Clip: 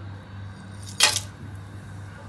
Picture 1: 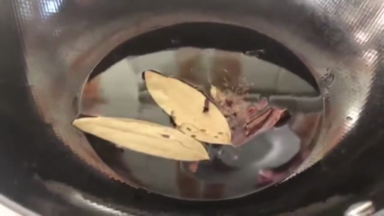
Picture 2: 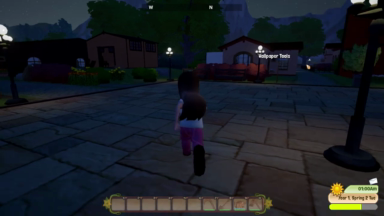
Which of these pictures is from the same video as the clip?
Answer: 1